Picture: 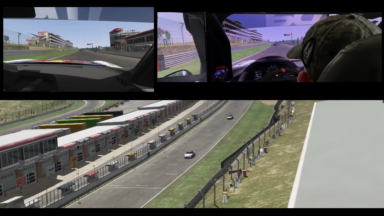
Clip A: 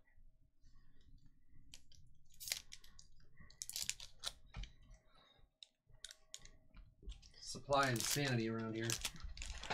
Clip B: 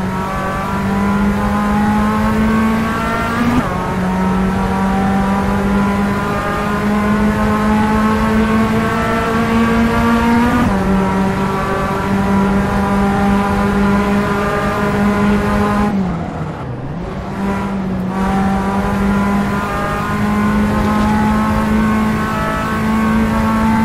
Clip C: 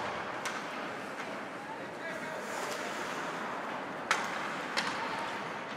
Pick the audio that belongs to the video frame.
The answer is B